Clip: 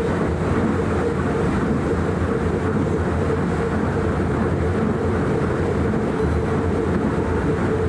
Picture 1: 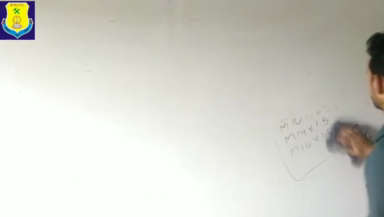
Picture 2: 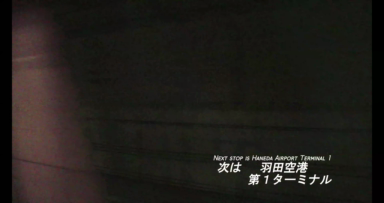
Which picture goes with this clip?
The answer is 2